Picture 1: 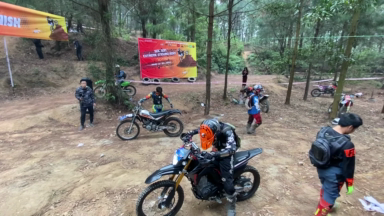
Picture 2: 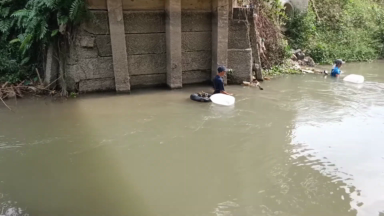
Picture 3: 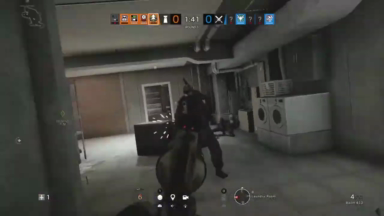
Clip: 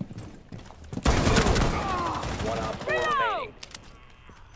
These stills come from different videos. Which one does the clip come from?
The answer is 3